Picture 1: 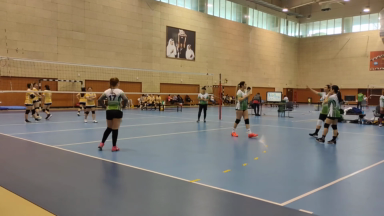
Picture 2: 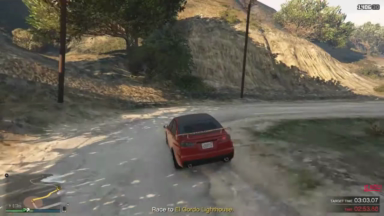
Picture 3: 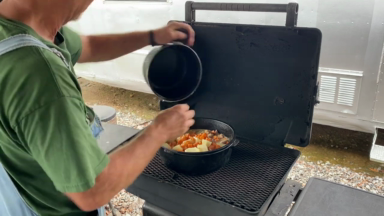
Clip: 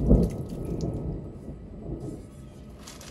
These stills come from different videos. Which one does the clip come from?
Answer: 3